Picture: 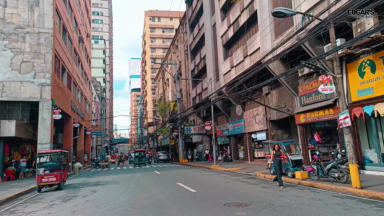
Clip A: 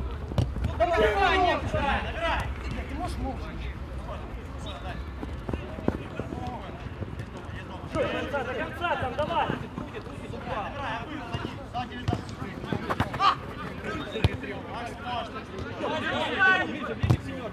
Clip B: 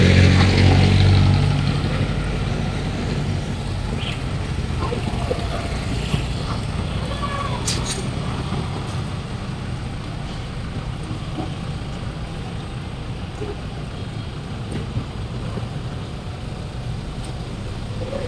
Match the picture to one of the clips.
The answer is B